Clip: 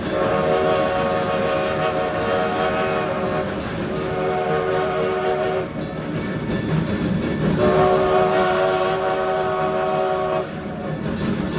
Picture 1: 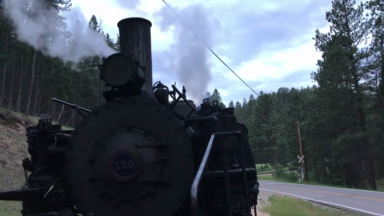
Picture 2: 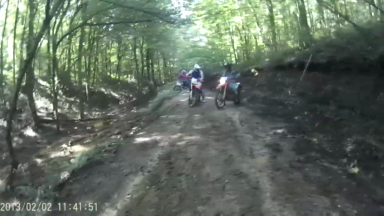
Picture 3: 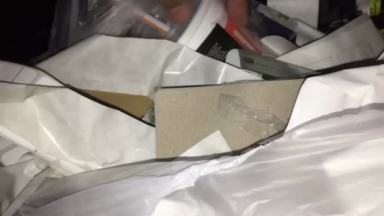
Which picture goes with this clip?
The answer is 1